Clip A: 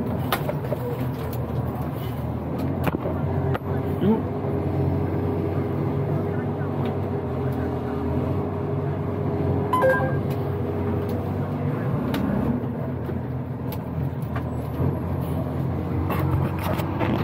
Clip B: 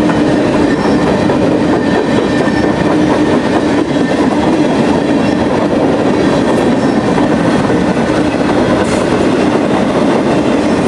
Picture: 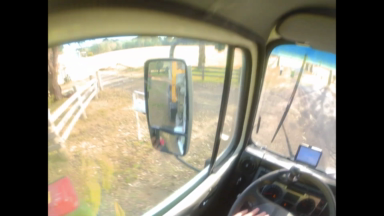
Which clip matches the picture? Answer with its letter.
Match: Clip A